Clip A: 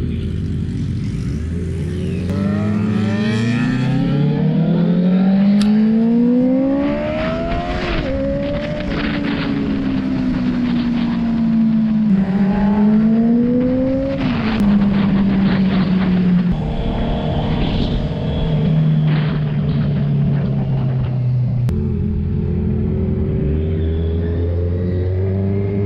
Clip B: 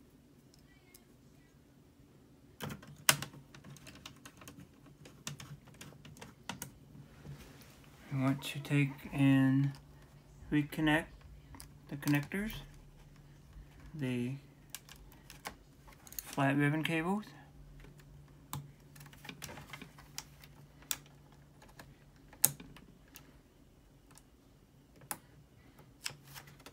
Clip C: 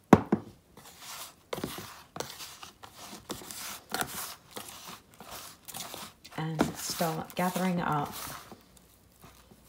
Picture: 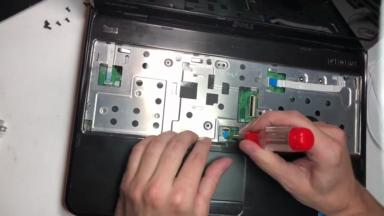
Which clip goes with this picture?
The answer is B